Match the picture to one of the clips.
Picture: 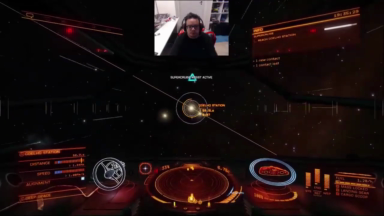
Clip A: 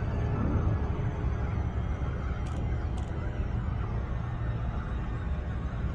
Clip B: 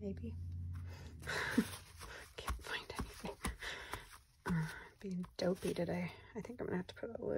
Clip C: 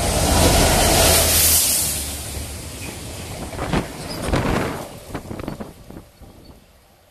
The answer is A